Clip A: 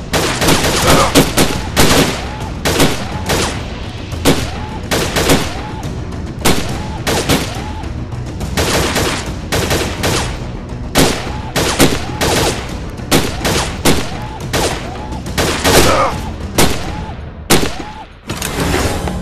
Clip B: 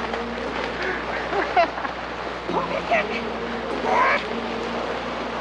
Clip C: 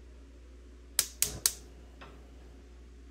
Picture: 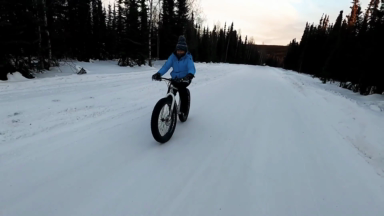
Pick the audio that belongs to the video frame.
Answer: B